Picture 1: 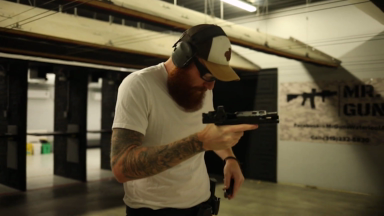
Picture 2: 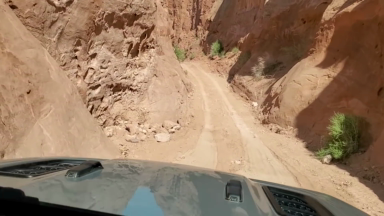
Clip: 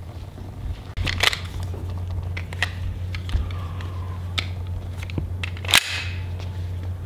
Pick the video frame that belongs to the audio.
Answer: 1